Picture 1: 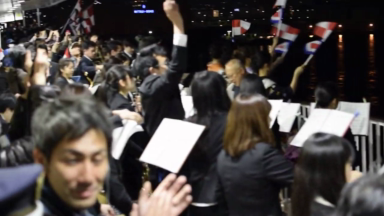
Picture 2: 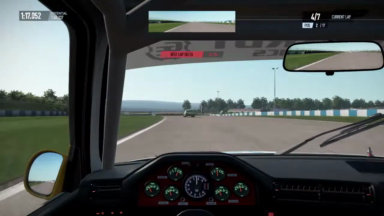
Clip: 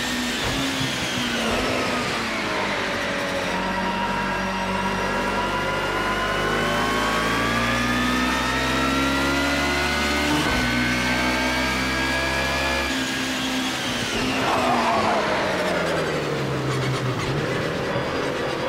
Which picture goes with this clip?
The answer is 2